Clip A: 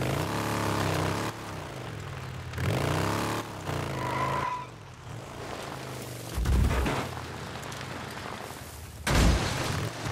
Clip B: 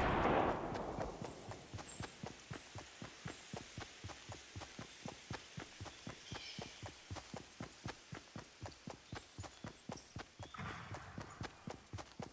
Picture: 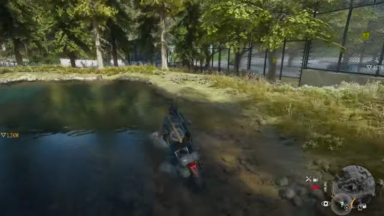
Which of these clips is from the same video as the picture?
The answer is A